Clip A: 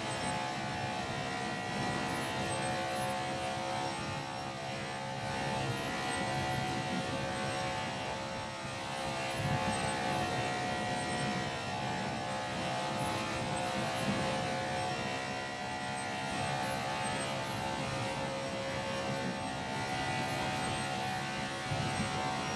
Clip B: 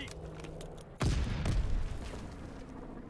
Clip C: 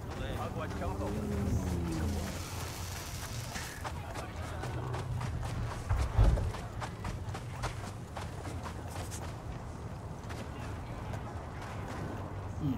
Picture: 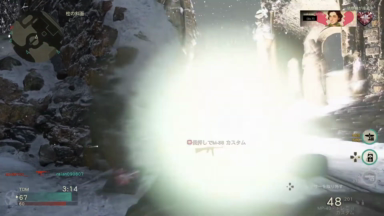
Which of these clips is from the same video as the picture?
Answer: B